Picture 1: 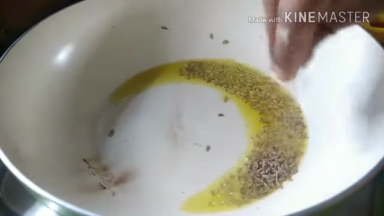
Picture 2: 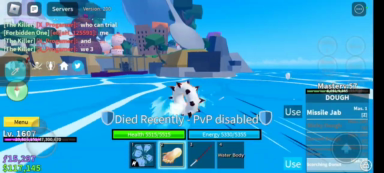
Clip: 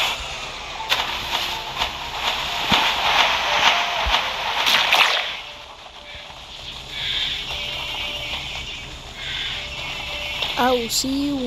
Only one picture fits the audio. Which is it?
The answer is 2